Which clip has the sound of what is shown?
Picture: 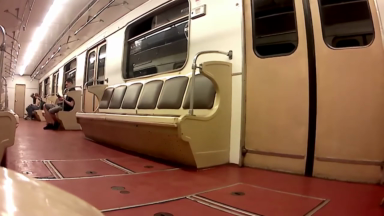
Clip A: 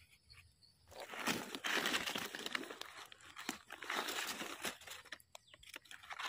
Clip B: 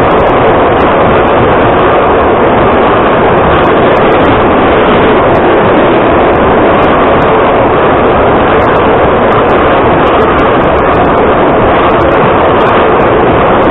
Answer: B